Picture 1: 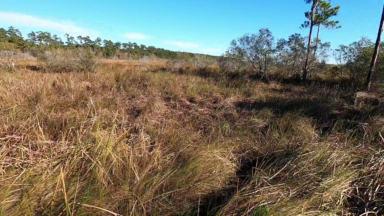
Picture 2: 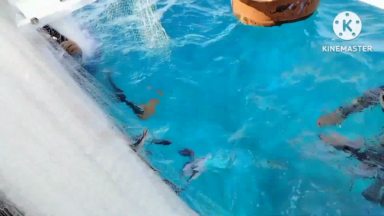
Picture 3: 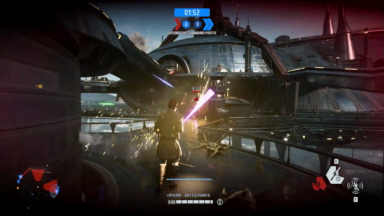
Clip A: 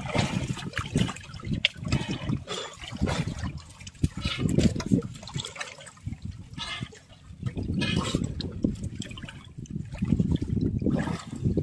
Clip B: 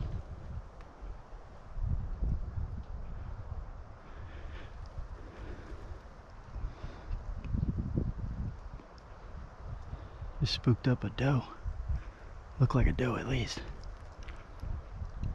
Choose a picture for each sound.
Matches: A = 2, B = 1